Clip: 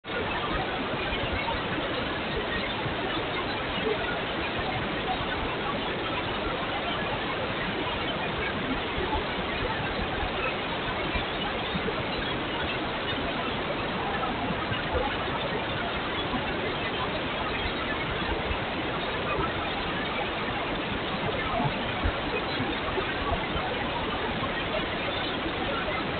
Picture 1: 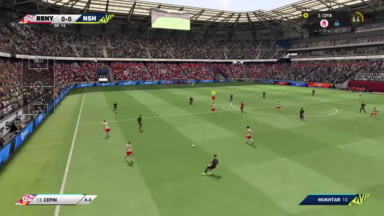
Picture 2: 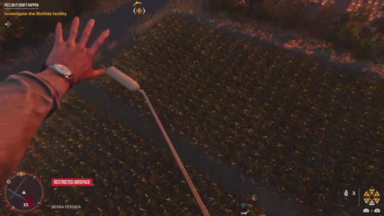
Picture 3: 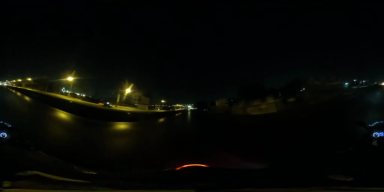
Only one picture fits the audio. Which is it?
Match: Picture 3